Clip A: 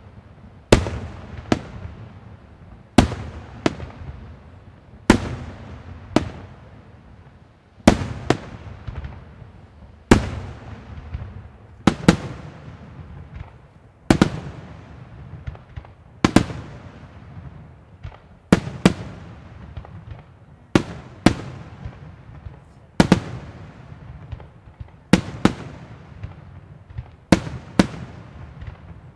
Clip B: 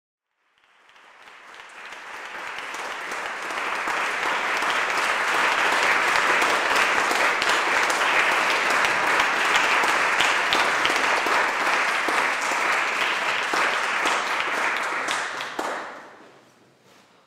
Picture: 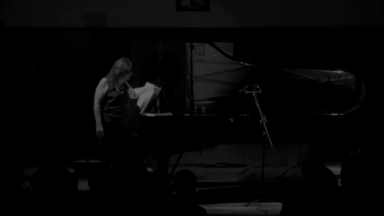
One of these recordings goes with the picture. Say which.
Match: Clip B